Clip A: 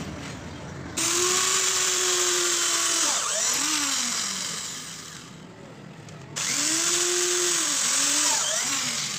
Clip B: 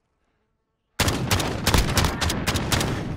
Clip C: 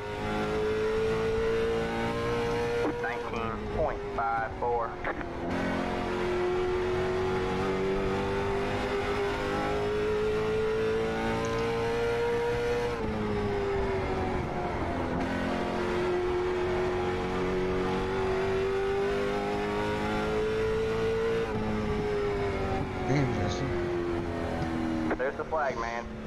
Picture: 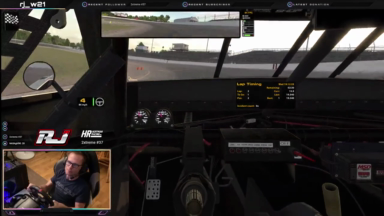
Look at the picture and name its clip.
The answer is C